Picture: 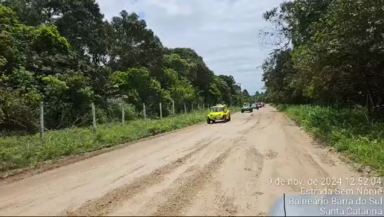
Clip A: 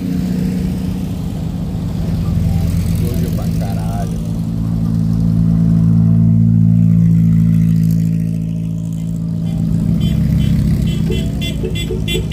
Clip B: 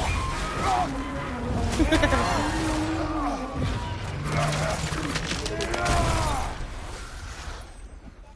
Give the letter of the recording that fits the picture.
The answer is A